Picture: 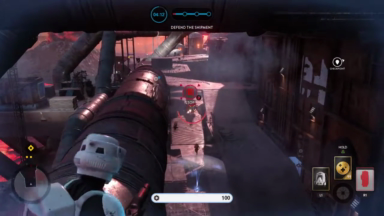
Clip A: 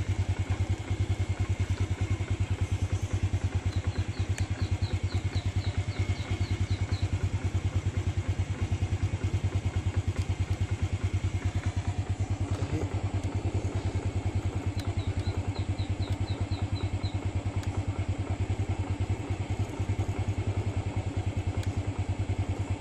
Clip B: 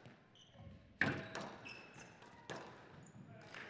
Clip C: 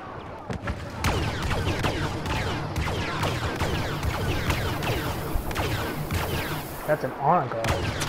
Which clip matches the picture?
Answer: C